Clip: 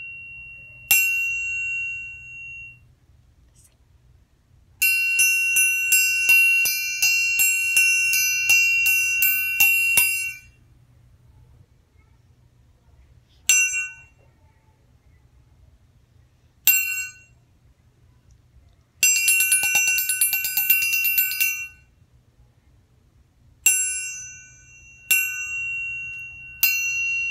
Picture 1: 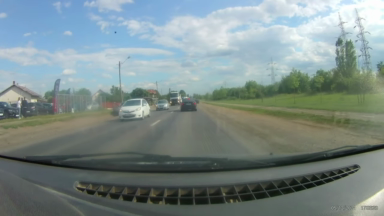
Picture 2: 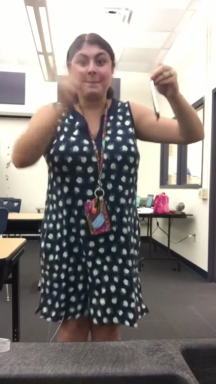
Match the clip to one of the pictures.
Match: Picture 2